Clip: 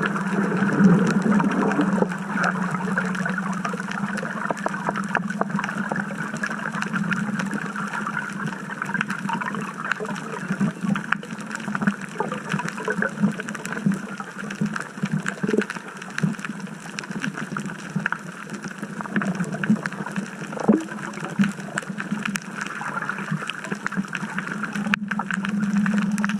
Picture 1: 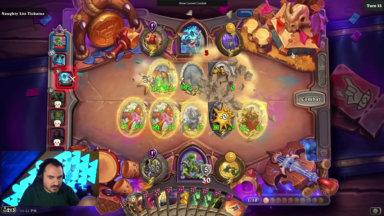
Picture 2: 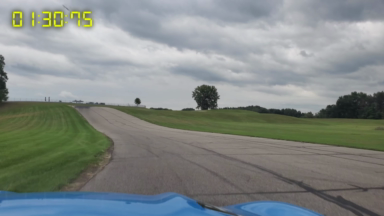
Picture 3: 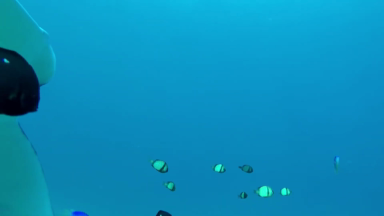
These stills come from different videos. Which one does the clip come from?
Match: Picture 3